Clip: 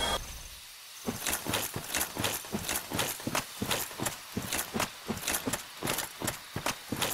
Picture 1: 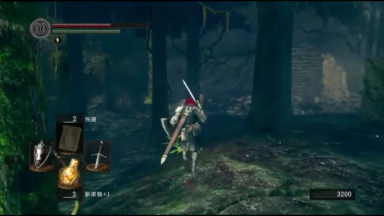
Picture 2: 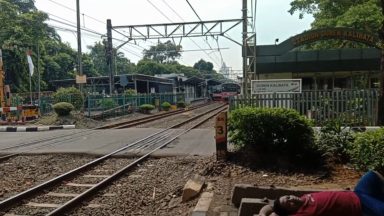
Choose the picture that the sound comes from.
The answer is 1